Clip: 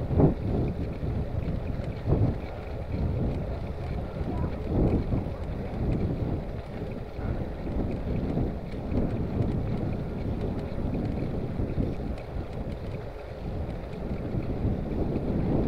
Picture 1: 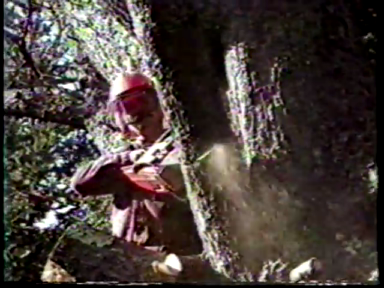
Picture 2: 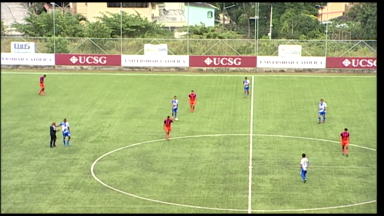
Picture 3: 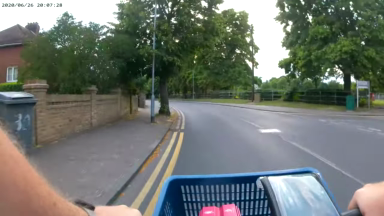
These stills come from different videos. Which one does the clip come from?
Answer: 3